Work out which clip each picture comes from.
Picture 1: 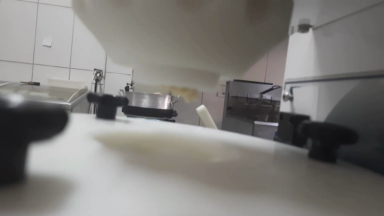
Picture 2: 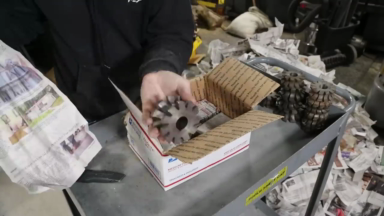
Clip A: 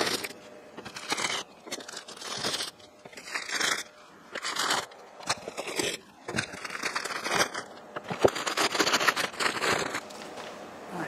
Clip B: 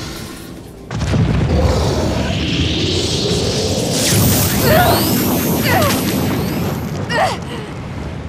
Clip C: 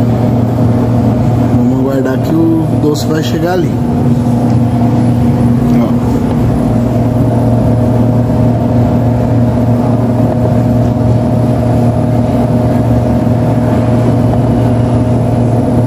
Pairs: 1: C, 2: A